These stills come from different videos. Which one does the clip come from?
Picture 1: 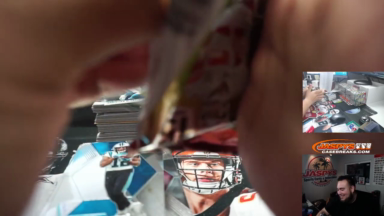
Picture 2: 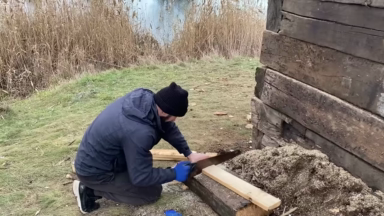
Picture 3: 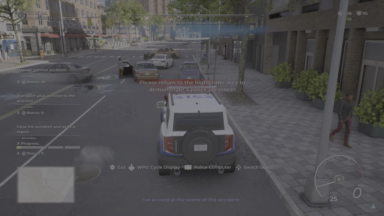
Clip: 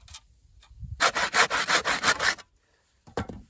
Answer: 2